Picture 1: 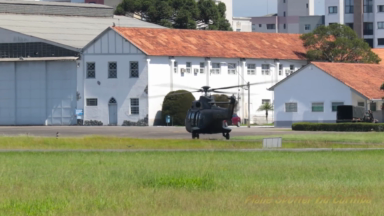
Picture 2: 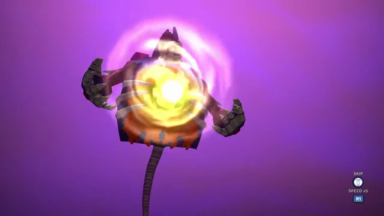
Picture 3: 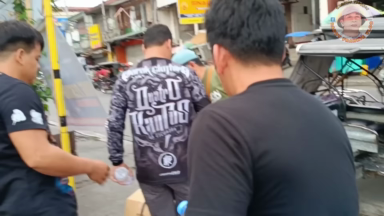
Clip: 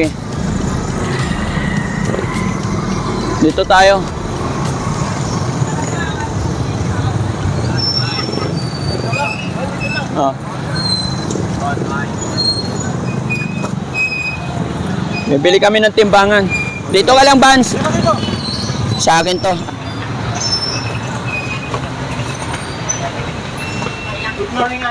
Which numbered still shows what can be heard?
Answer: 3